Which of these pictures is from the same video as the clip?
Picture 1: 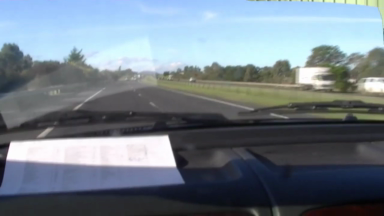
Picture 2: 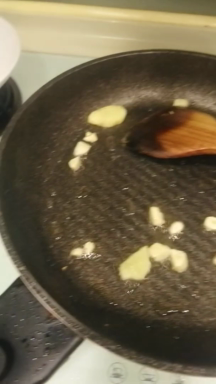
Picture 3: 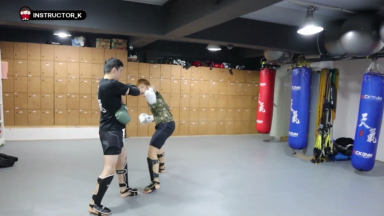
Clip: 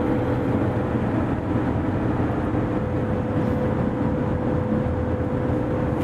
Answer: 1